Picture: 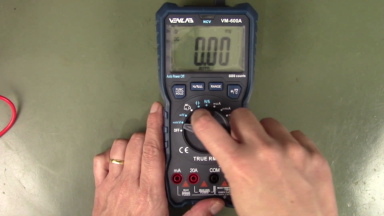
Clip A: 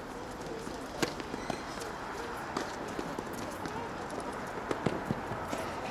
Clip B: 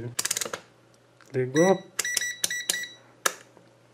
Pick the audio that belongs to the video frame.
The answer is B